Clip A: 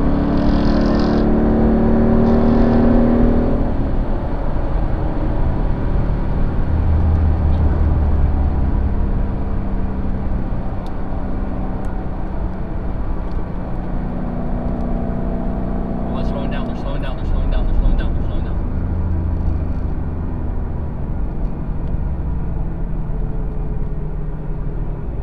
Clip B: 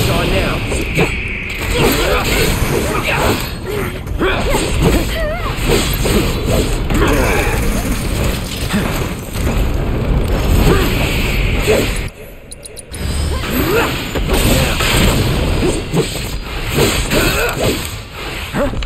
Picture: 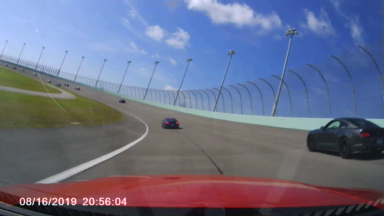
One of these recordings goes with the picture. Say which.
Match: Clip A